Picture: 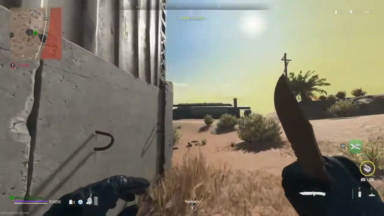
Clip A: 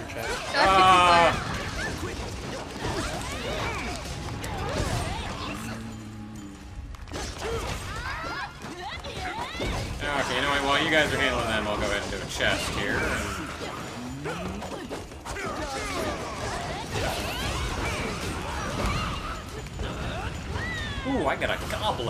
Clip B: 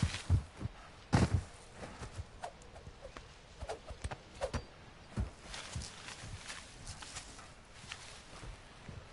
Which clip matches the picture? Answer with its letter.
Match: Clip B